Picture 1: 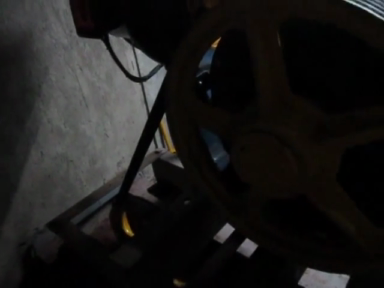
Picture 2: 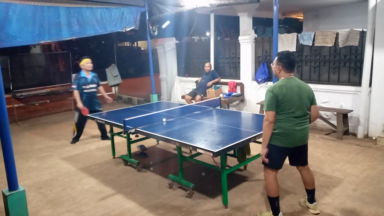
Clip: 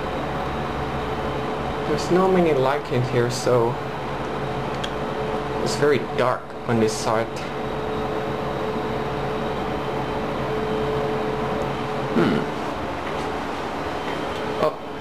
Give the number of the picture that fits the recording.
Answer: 1